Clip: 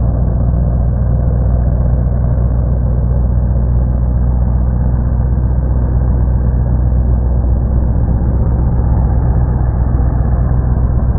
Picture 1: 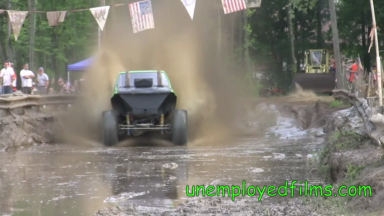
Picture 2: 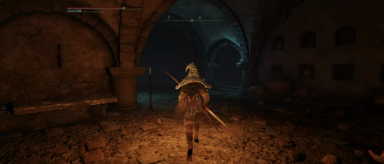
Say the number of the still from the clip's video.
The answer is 1